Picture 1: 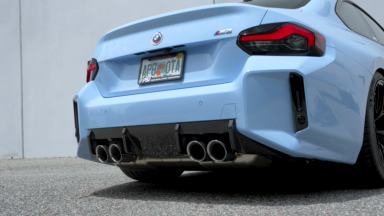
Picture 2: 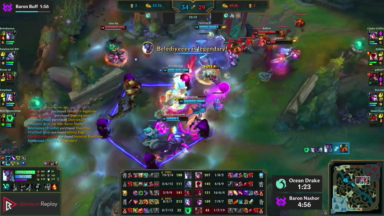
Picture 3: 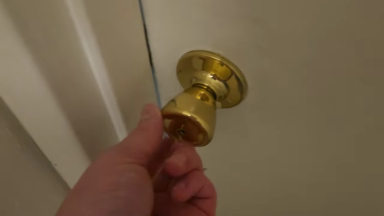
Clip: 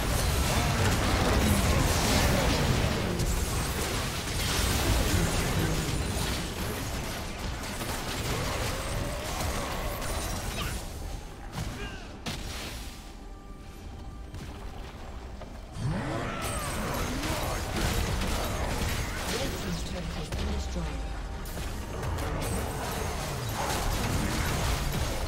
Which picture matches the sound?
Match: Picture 2